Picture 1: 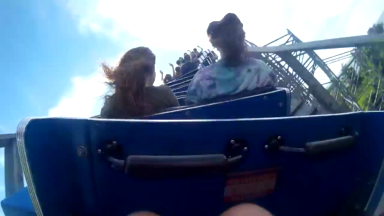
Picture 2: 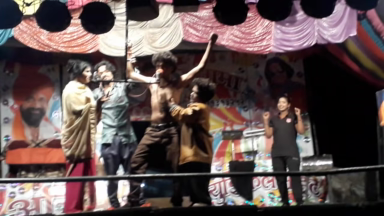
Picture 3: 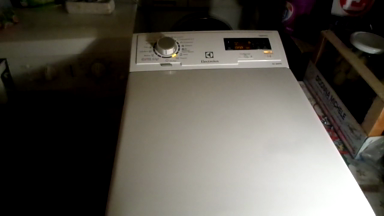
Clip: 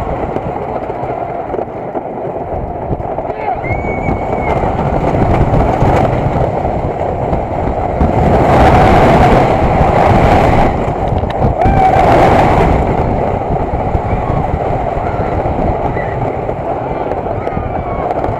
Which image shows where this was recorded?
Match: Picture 1